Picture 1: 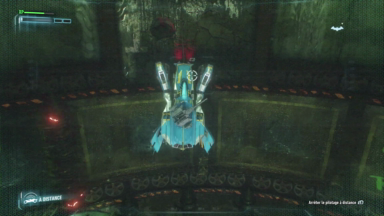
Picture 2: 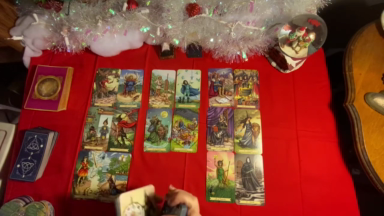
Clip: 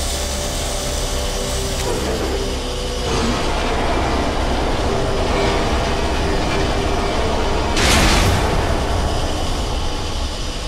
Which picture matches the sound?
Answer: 1